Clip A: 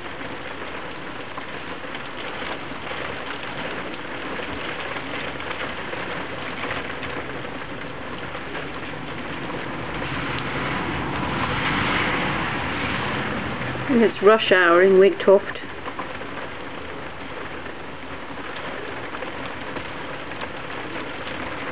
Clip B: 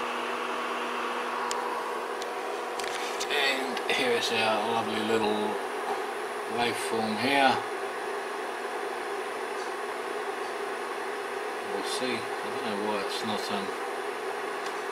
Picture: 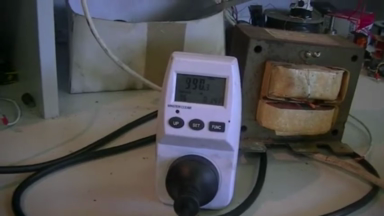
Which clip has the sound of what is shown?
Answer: B